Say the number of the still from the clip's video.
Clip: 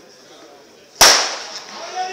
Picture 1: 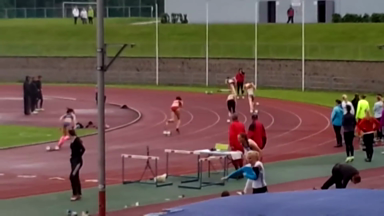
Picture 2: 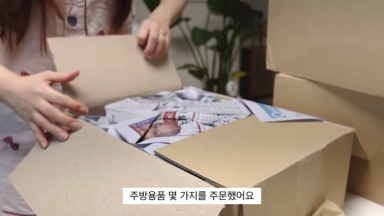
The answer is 1